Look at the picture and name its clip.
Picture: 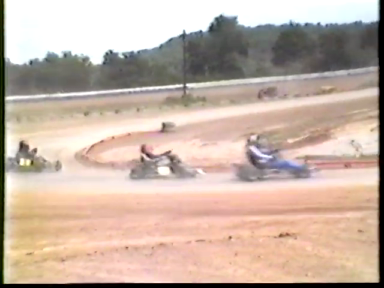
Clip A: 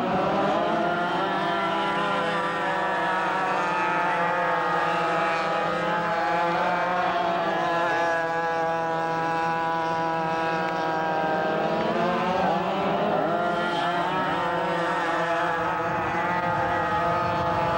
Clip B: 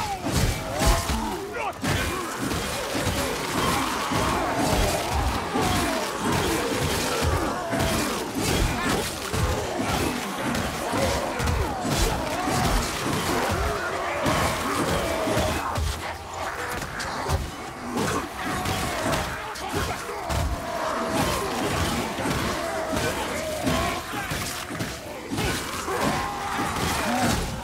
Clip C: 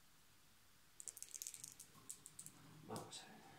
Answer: A